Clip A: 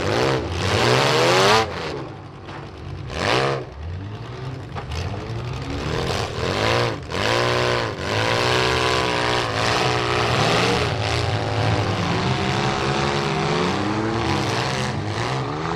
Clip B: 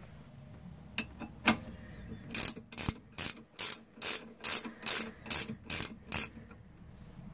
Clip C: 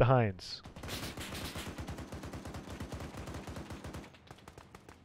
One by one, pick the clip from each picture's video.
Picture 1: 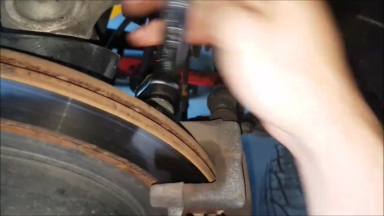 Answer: B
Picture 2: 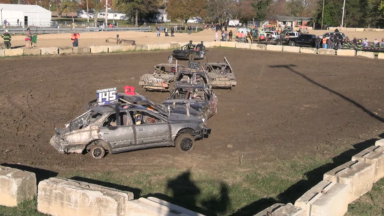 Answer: A